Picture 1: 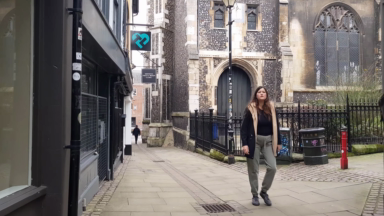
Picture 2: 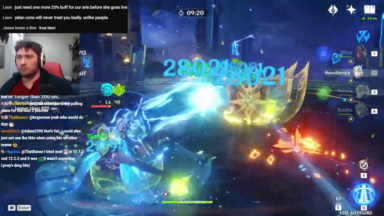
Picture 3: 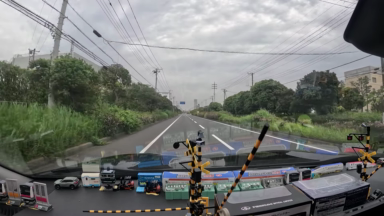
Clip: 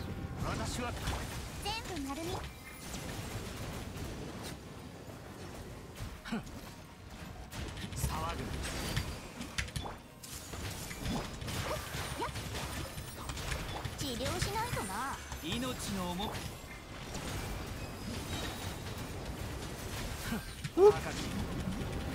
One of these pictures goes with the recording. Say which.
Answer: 2